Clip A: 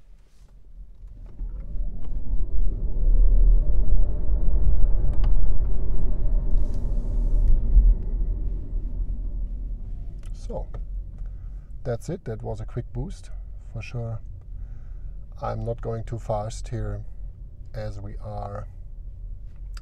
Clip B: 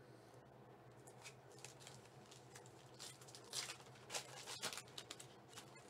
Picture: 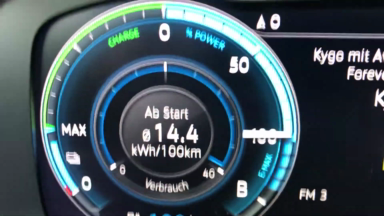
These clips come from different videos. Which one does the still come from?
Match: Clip A